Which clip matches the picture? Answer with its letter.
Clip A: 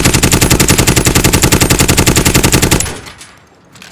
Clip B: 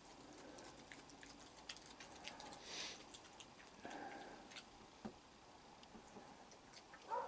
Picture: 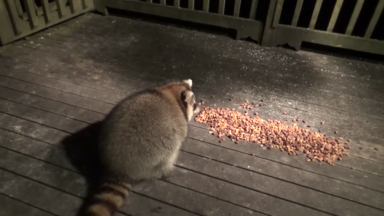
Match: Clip B